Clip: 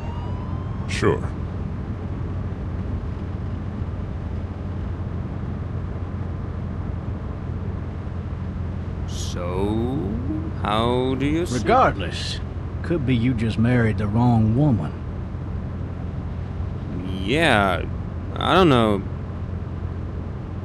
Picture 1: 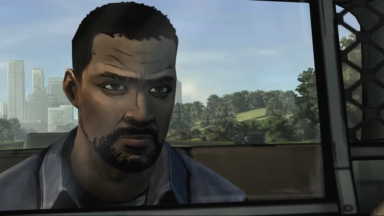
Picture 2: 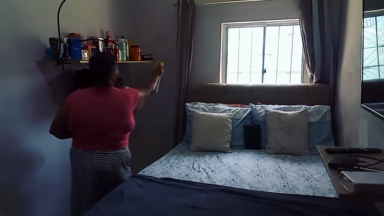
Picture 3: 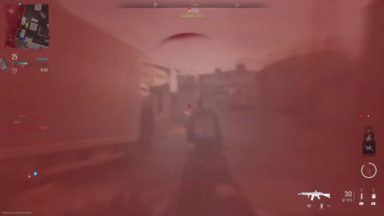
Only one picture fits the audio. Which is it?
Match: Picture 1